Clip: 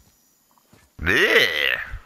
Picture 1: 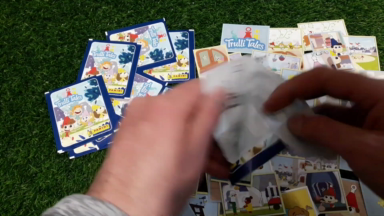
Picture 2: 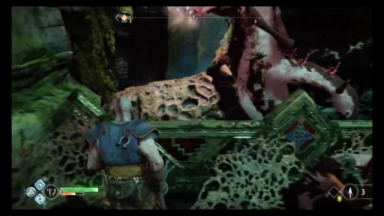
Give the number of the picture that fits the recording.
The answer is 2